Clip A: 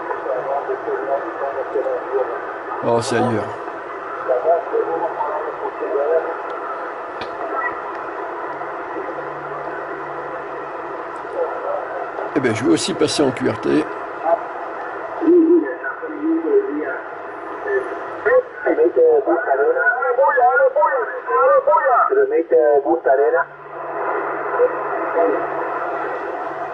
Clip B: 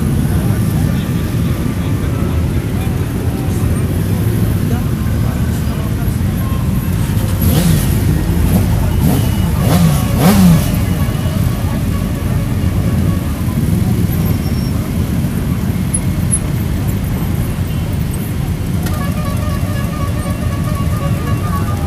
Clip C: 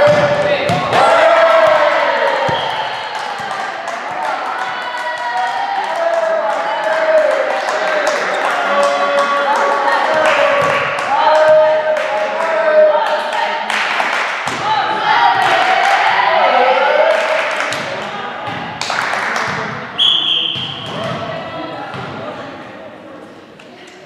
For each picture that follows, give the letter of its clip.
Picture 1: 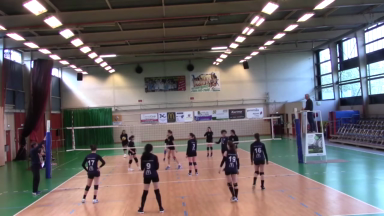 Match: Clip C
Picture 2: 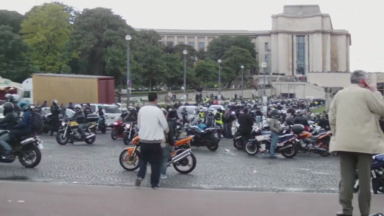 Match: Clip B